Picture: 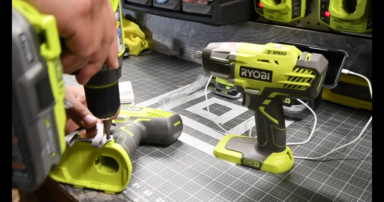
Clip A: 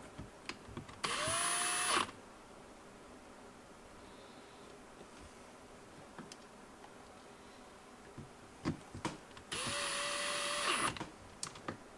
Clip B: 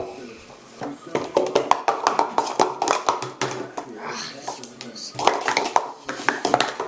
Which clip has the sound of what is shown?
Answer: A